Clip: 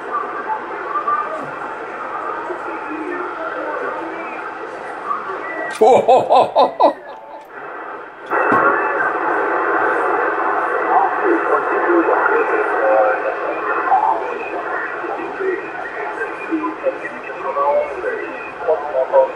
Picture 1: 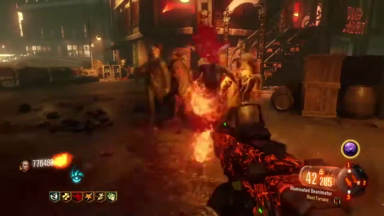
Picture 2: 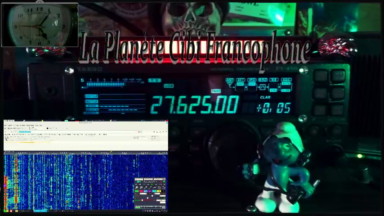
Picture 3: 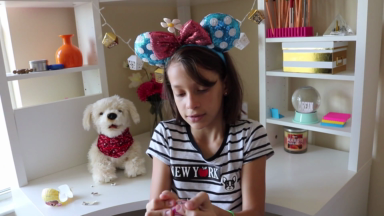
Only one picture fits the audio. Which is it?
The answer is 2